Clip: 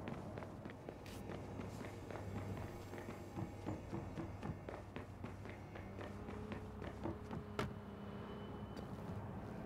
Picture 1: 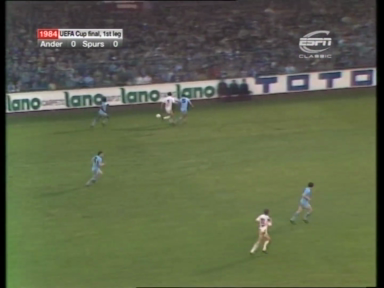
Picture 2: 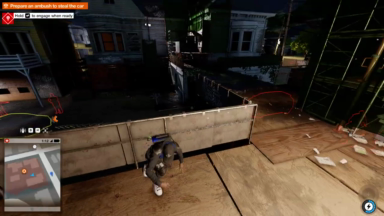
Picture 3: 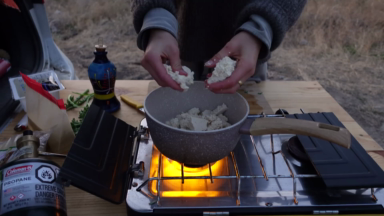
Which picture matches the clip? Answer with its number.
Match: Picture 2